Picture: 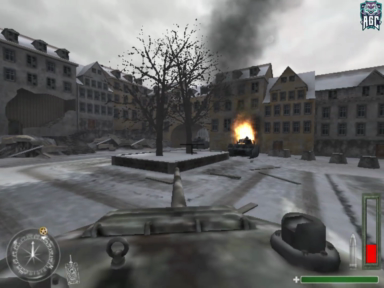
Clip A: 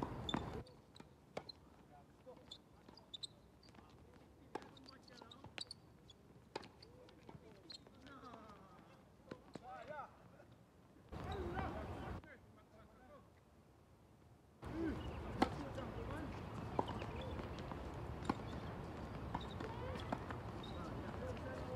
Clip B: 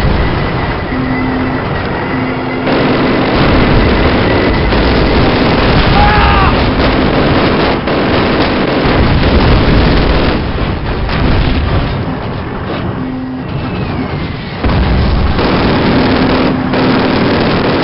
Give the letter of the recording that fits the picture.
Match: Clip B